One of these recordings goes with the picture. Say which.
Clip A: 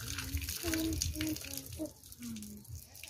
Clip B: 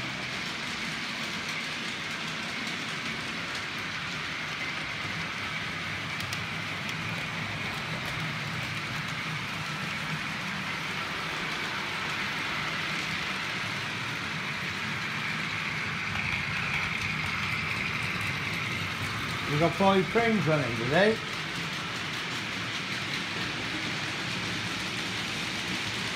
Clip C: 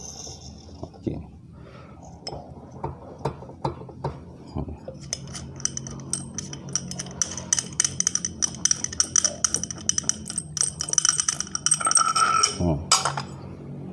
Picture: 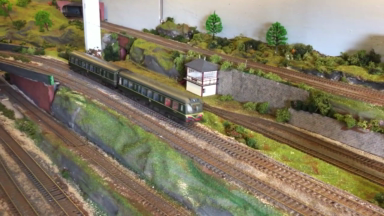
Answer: B